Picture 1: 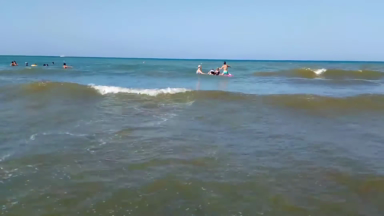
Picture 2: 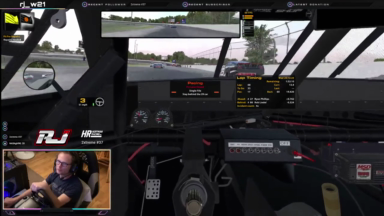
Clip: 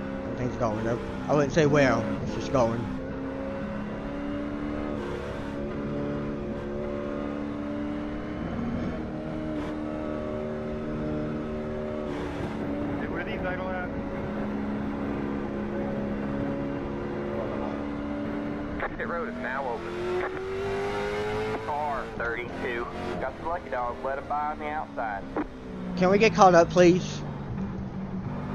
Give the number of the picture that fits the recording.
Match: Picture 2